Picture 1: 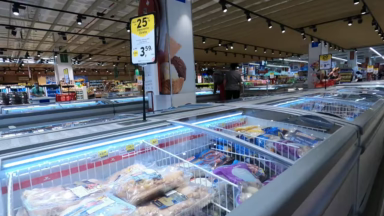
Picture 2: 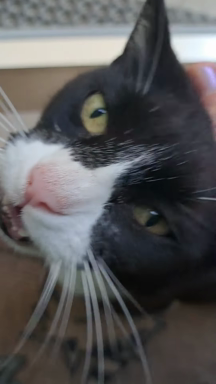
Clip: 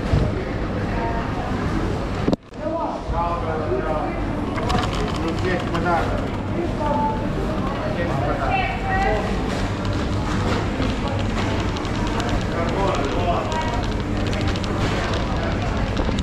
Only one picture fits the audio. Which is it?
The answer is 1